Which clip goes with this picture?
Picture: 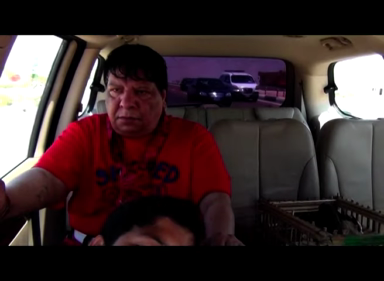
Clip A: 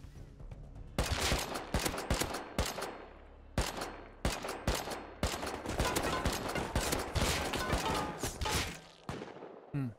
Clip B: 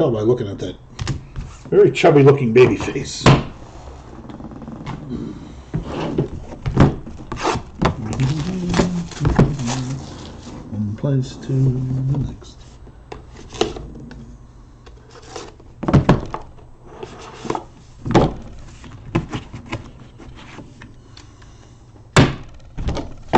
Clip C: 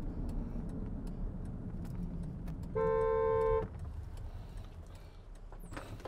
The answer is C